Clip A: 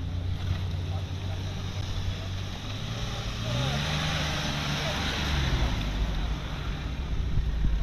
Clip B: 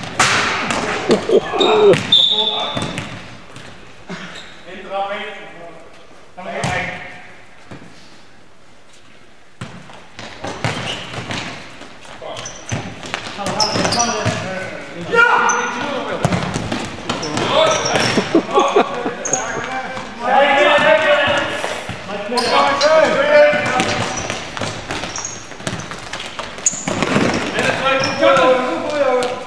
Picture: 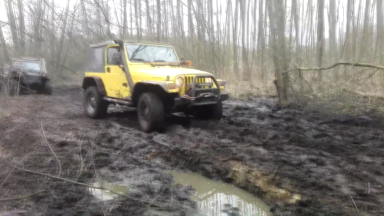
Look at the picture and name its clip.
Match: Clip A